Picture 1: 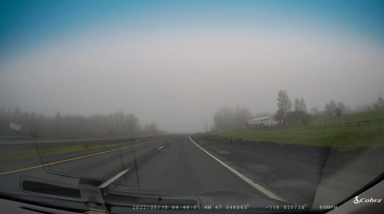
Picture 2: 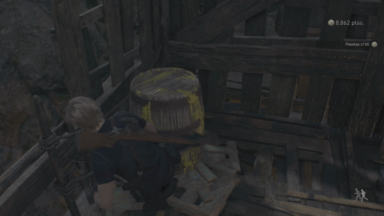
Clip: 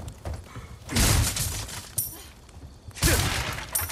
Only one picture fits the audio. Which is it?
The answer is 2